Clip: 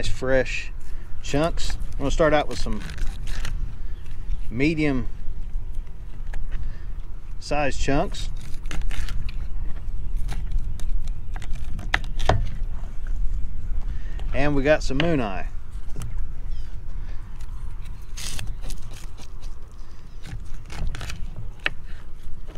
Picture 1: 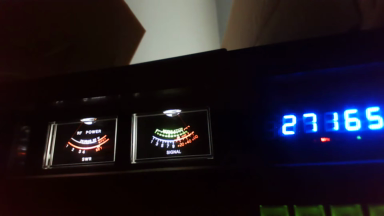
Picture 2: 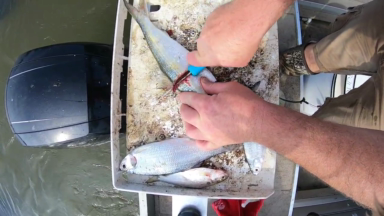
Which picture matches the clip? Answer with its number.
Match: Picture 2